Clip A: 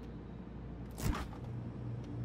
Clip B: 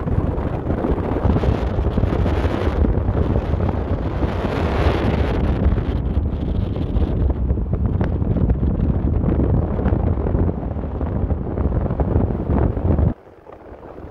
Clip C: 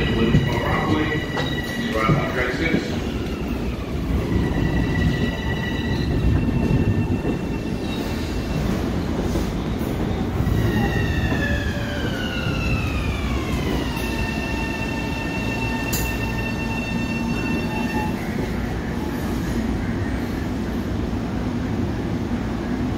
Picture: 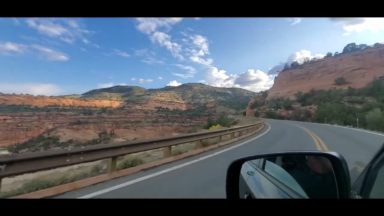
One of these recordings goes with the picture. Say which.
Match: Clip B